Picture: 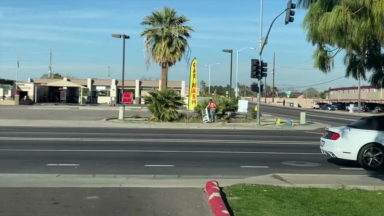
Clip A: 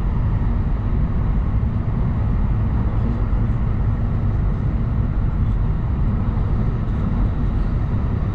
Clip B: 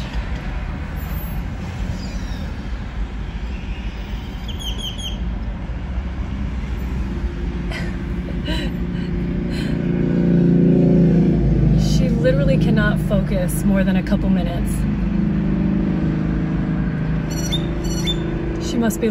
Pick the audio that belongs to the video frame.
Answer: B